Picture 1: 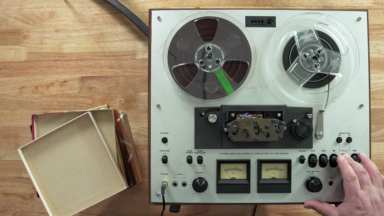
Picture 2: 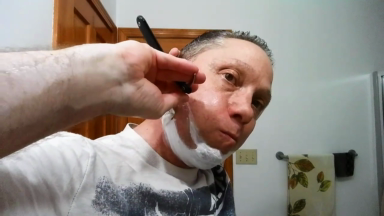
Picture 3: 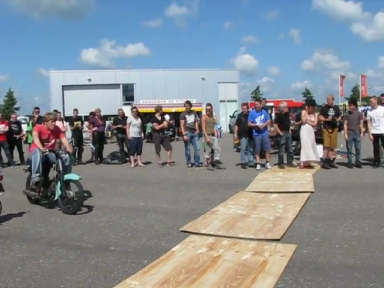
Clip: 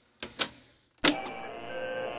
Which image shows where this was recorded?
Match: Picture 1